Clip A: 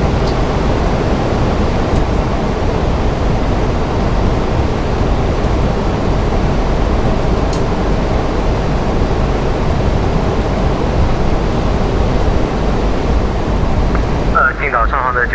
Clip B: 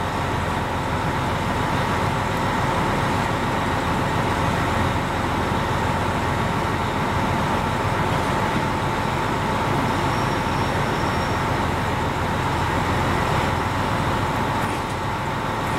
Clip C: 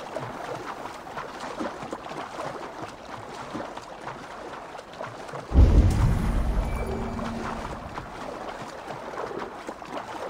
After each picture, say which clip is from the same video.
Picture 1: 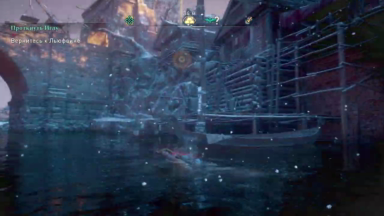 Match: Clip C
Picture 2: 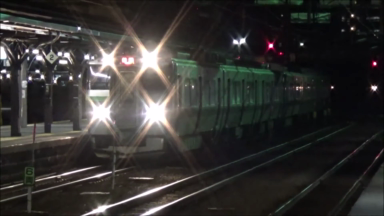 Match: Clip B